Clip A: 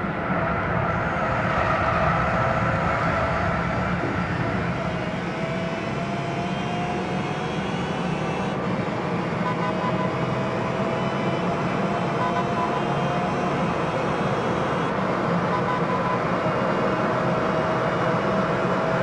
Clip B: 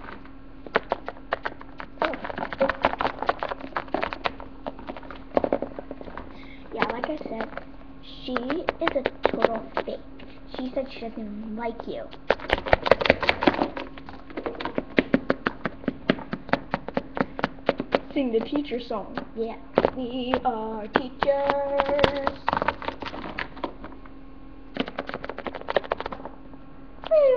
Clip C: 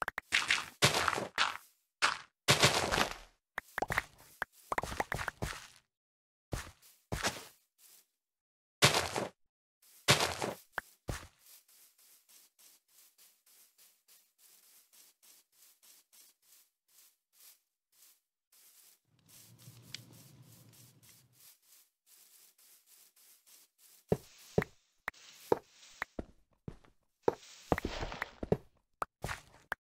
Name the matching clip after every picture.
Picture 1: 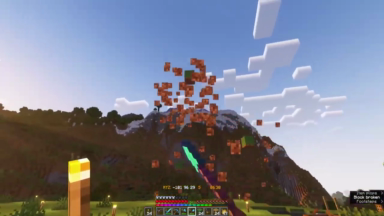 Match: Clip C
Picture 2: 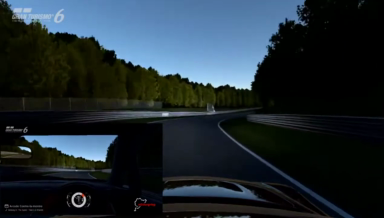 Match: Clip A